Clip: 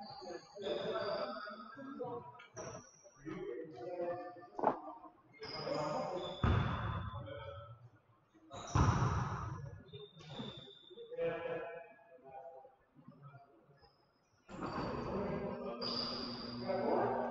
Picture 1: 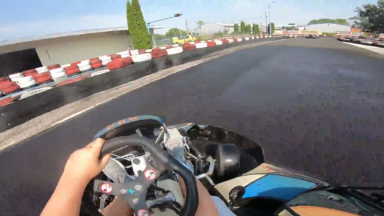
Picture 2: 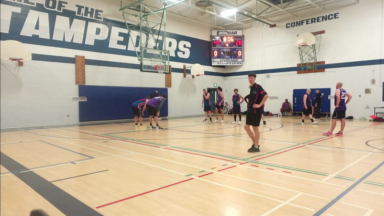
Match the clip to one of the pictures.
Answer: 2